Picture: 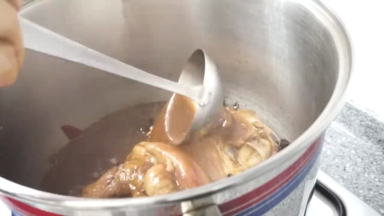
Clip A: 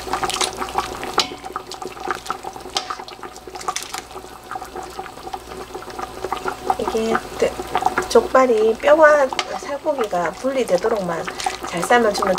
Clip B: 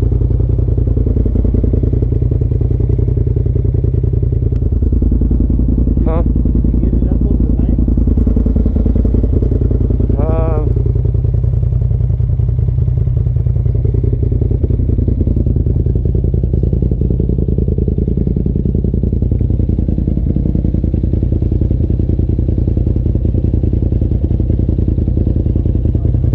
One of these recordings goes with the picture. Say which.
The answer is A